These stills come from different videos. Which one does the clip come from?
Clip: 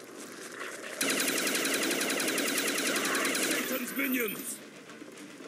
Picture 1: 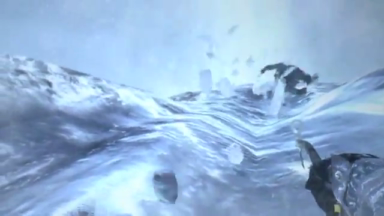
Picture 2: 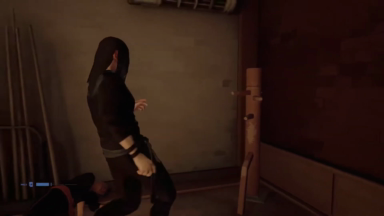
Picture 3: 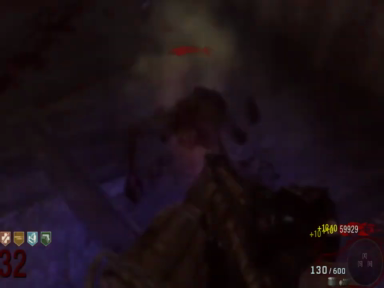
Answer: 3